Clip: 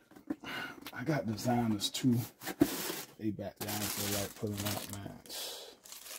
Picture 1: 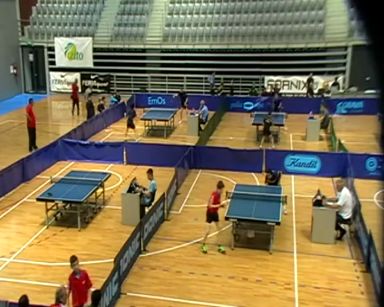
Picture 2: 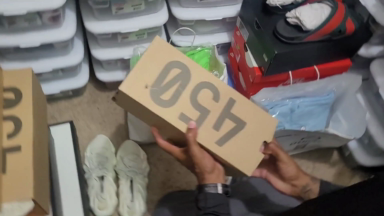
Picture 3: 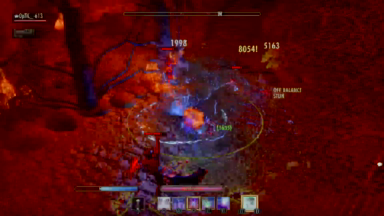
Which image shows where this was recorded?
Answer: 2